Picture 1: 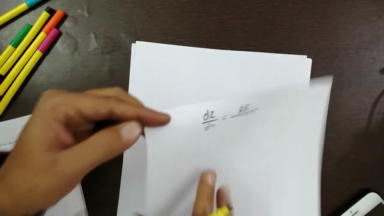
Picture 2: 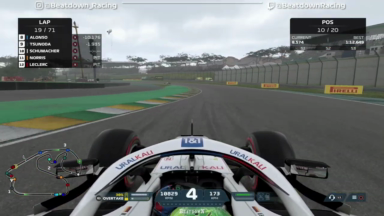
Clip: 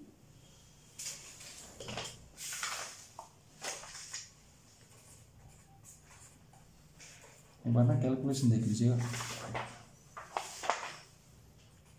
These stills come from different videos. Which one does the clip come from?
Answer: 1